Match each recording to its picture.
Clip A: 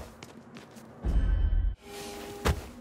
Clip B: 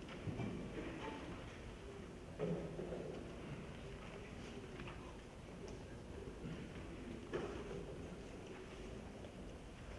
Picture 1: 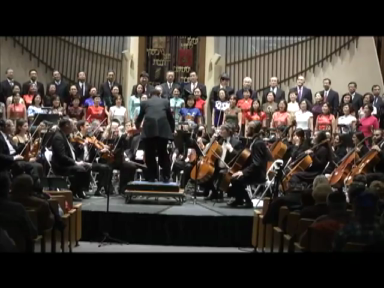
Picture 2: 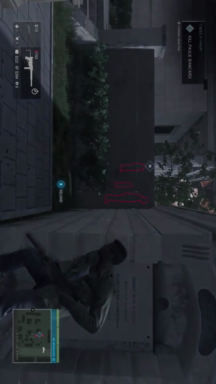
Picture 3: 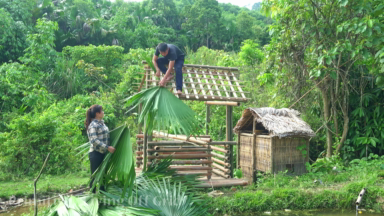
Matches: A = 2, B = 1